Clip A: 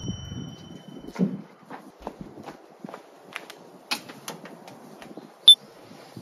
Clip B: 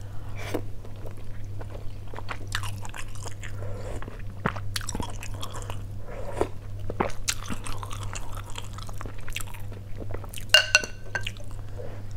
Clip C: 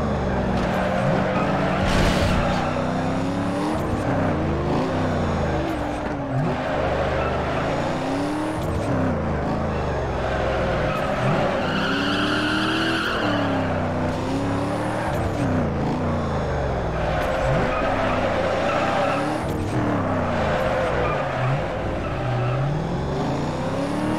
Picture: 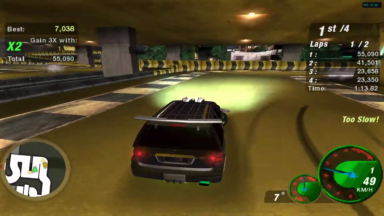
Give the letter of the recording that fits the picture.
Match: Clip C